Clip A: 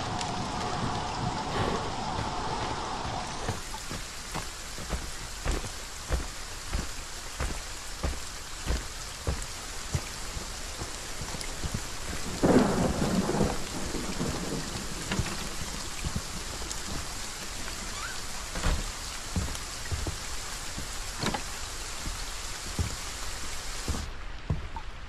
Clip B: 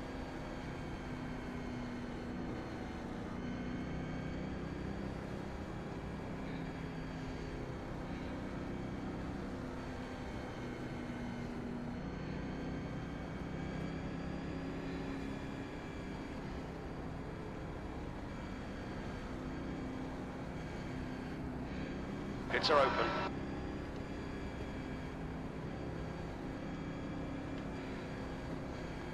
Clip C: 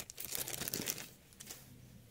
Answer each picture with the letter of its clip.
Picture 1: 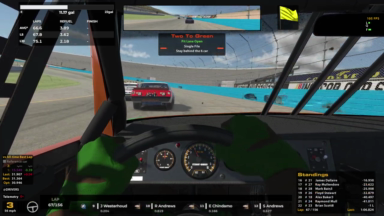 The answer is B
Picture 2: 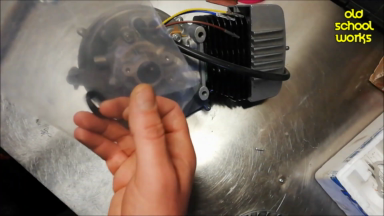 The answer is C